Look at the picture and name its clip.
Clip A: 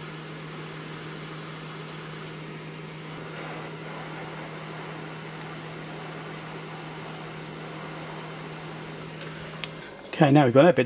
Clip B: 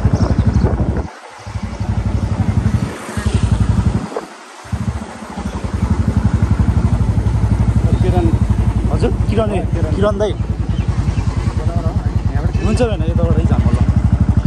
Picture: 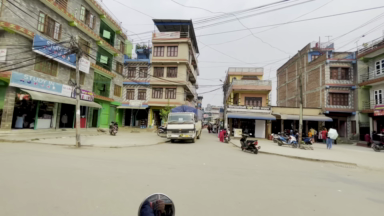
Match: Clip B